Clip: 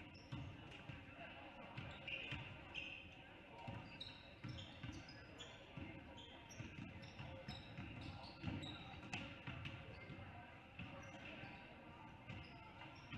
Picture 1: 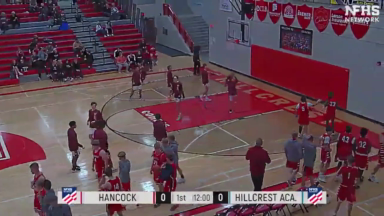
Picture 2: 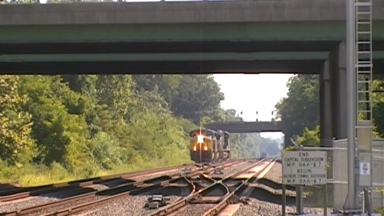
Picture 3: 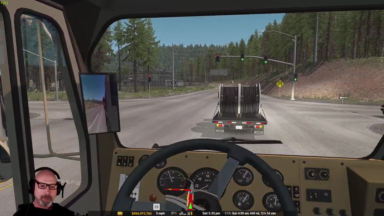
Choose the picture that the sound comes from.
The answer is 1